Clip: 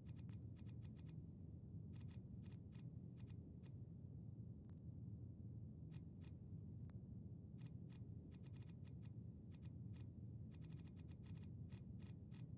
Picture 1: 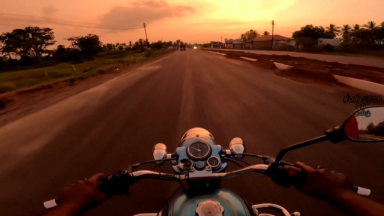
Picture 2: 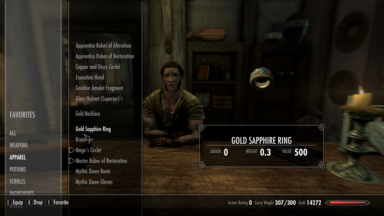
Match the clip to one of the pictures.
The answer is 2